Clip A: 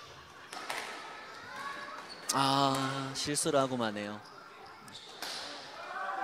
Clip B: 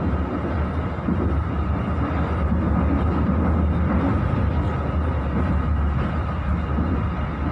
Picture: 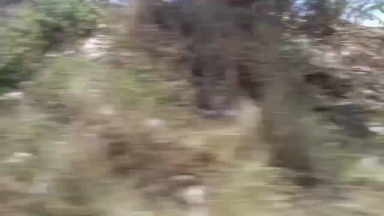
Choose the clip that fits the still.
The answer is B